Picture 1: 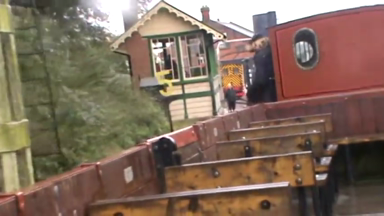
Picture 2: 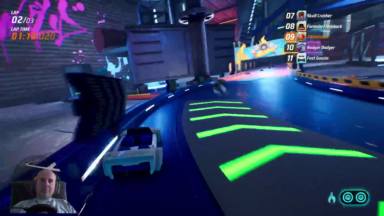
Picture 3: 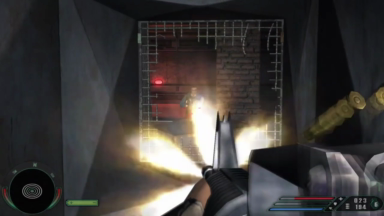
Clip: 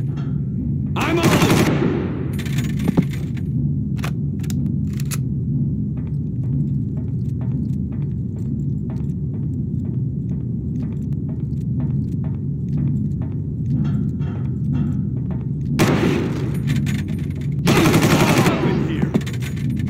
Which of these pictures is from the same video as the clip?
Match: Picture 3